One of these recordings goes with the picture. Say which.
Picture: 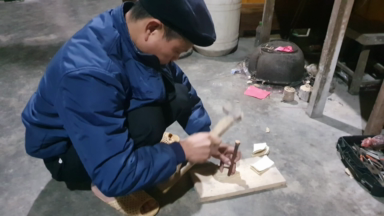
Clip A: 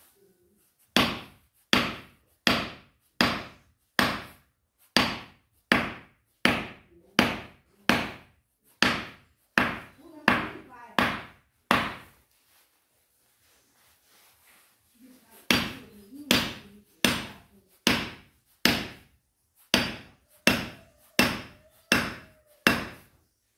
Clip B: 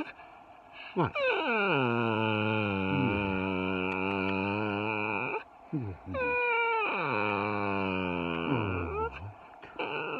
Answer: A